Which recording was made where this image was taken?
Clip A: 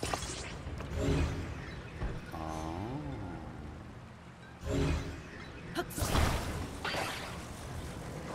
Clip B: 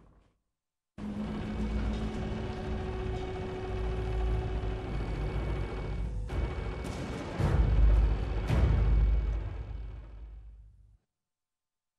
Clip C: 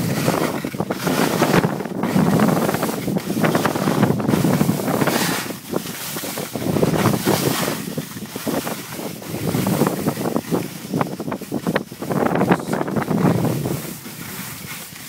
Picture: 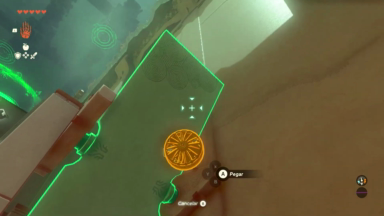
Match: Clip A